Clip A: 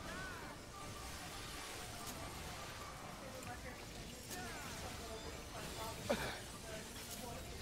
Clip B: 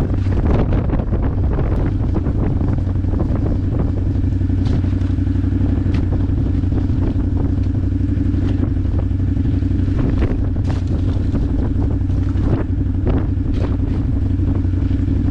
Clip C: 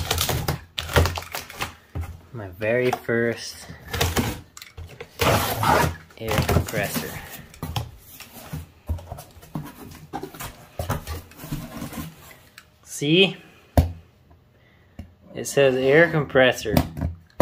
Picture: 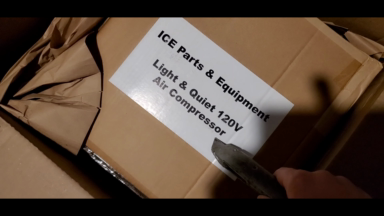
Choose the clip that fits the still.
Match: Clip C